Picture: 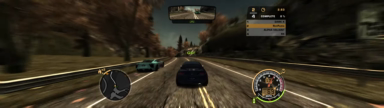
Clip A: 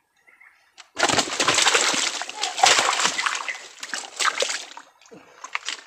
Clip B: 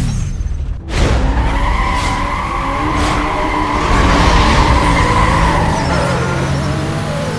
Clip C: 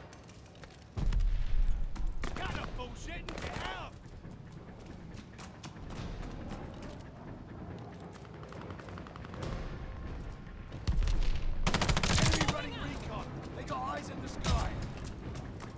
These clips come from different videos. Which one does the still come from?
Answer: B